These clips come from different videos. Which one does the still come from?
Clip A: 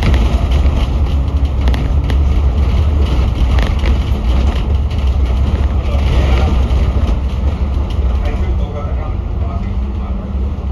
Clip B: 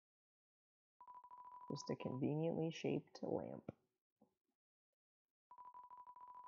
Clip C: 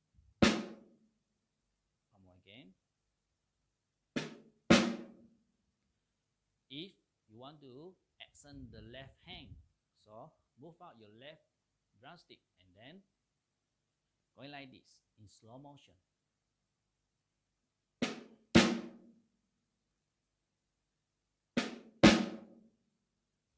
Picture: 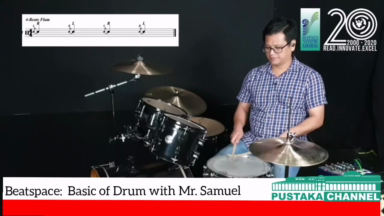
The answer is C